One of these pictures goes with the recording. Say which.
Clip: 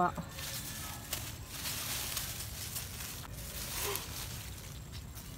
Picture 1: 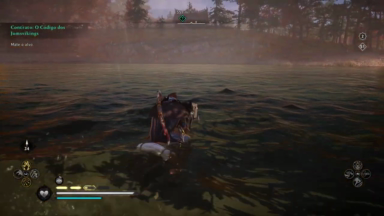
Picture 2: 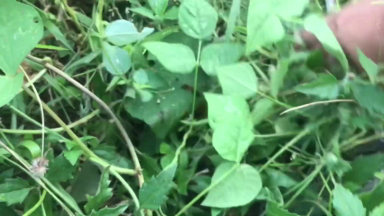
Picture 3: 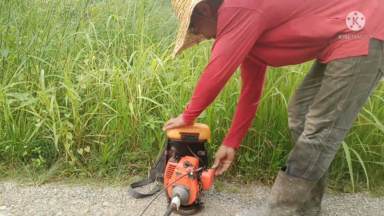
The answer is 2